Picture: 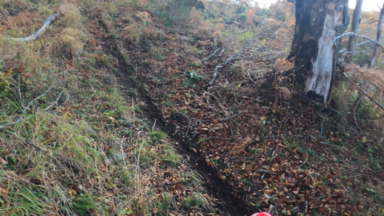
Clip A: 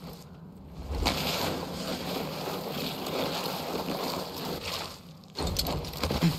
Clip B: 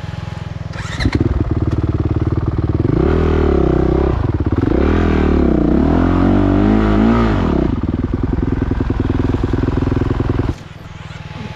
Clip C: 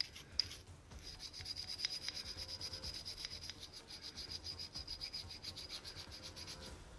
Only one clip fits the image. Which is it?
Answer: B